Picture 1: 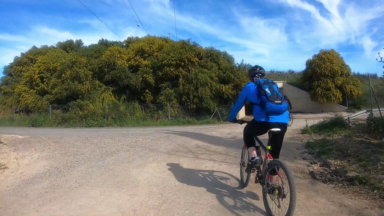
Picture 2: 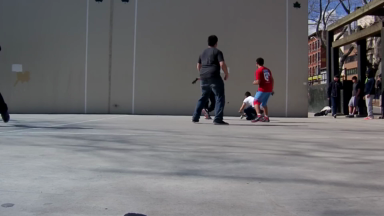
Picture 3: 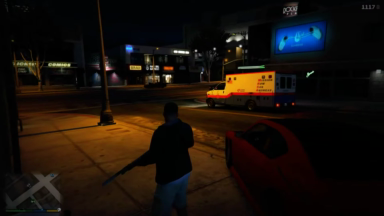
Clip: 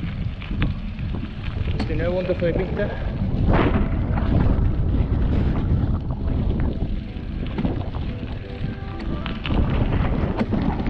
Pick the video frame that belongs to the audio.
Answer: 1